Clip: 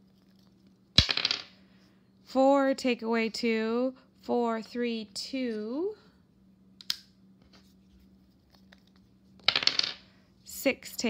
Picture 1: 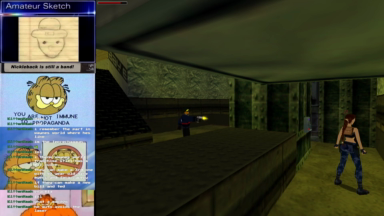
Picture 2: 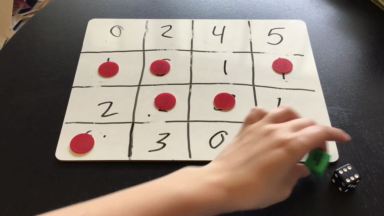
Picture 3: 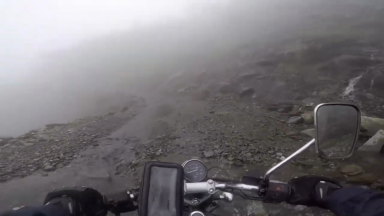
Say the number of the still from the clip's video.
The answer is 2